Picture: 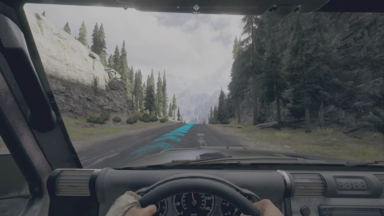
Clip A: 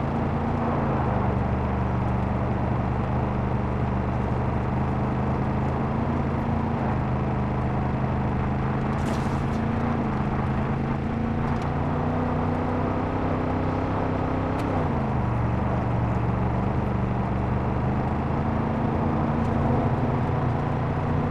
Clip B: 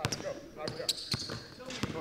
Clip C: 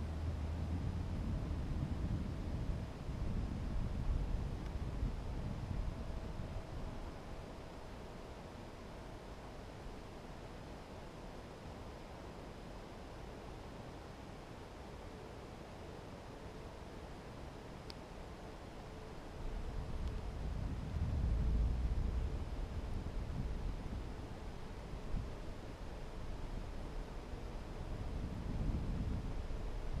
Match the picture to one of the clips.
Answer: A